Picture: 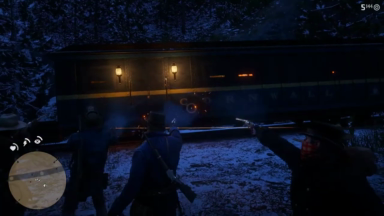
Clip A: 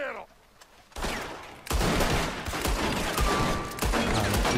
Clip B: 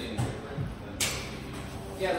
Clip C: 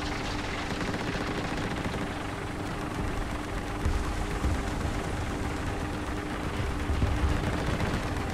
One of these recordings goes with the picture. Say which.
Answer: A